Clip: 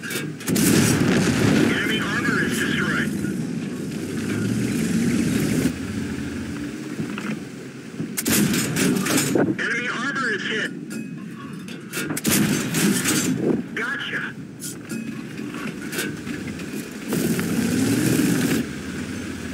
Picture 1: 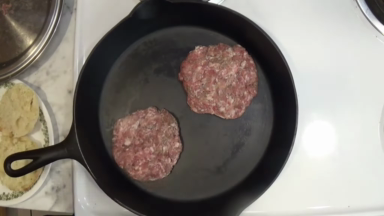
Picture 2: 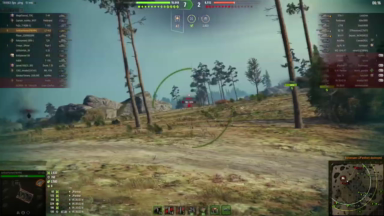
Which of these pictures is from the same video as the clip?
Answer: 2